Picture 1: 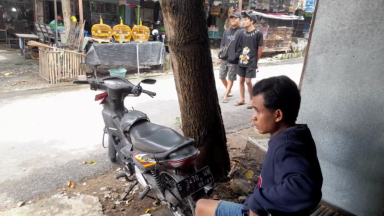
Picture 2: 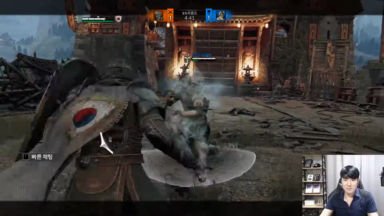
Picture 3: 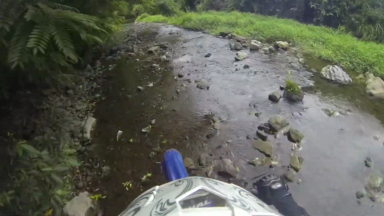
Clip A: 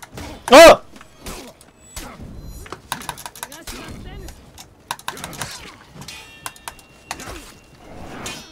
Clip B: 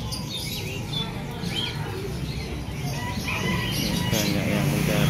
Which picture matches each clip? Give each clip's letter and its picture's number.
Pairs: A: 2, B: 1